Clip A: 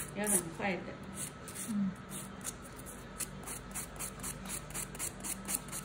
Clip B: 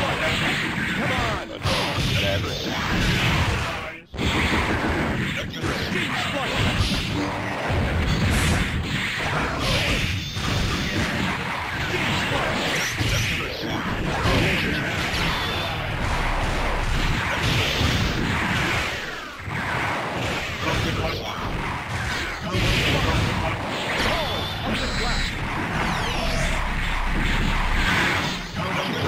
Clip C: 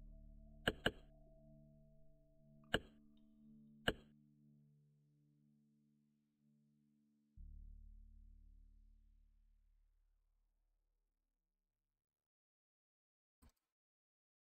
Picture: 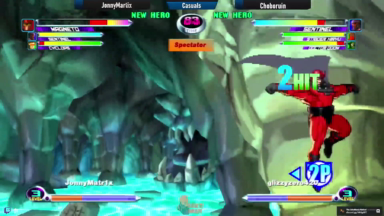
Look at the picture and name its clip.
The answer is B